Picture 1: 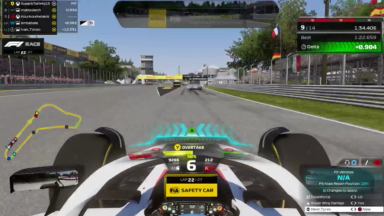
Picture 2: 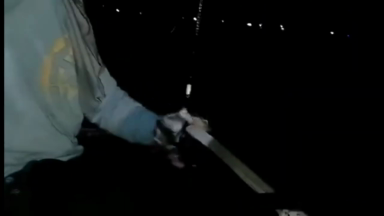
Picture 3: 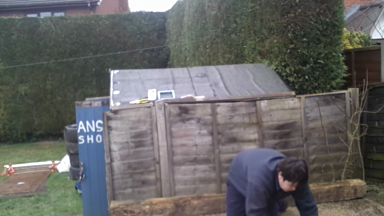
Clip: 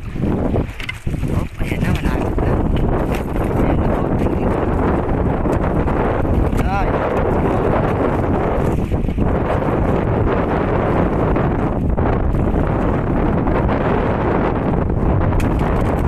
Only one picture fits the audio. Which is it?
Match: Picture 2